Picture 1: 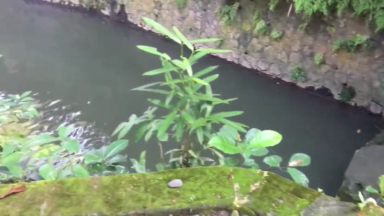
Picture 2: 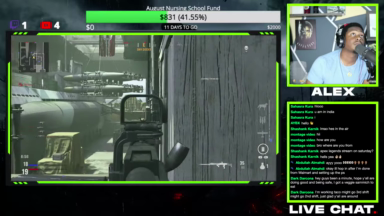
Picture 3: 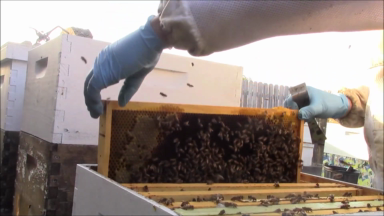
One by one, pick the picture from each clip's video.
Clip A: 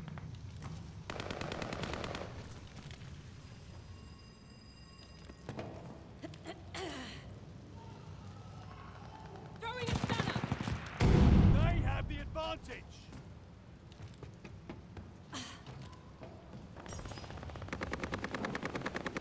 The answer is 2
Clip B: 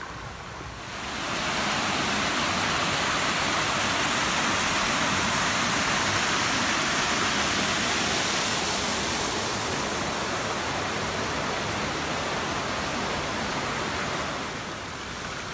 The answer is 1